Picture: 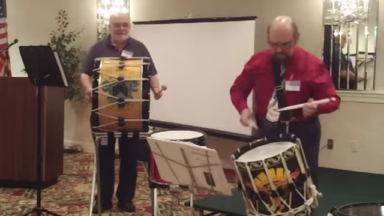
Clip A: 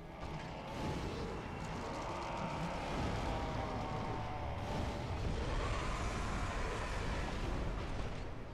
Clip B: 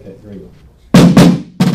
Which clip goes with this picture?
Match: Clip B